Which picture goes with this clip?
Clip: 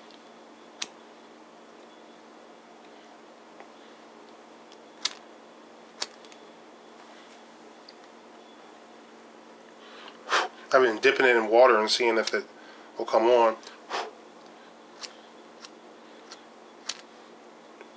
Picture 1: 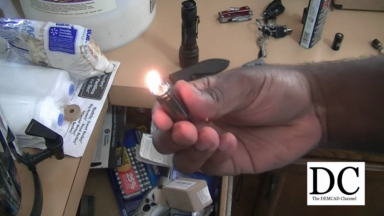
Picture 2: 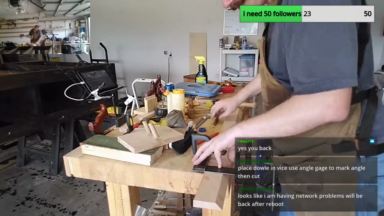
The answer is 1